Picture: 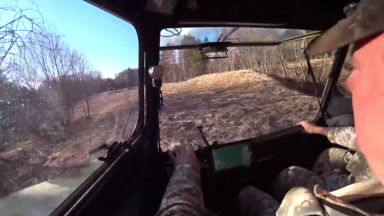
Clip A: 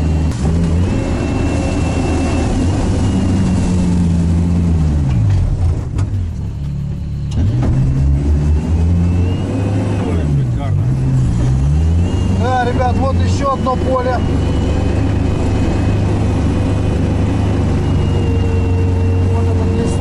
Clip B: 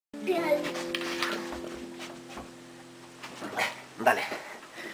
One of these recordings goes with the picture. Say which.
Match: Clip A